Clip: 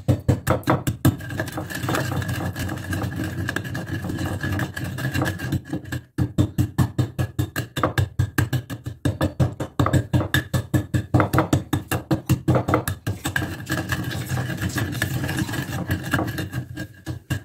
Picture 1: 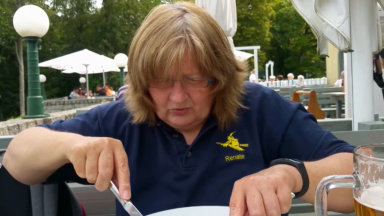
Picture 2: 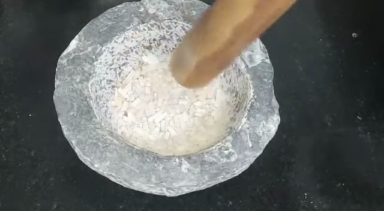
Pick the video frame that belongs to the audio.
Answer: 2